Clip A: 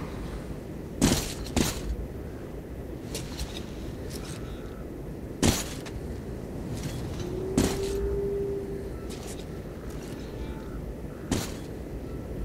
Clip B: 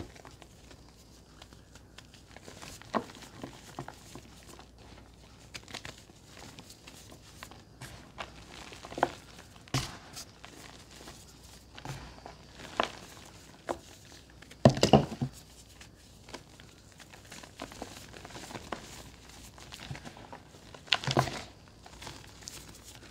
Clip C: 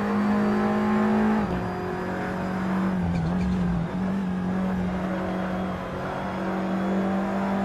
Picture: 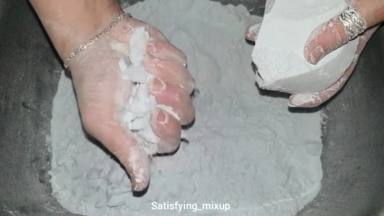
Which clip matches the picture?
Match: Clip B